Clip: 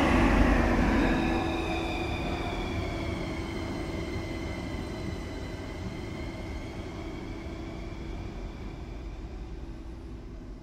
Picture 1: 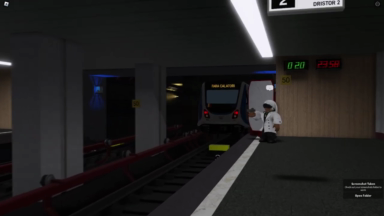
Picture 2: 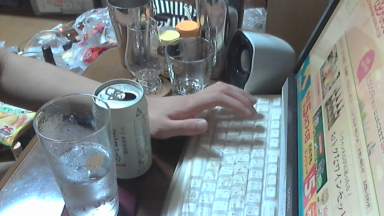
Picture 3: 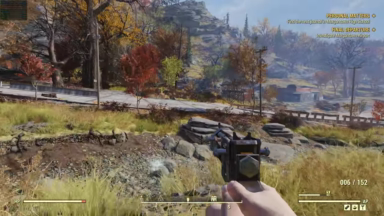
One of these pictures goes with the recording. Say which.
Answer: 1